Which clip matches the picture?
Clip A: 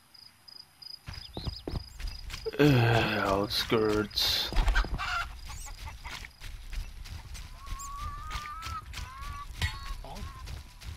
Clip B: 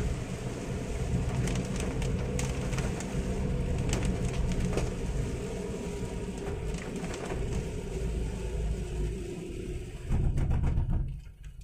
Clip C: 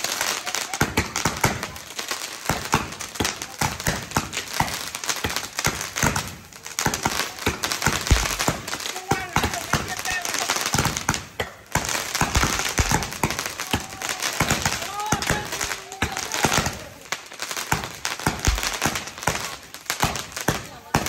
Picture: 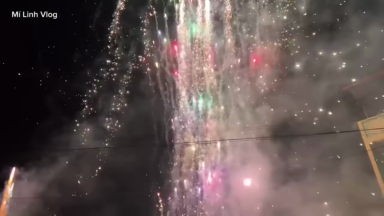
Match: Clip C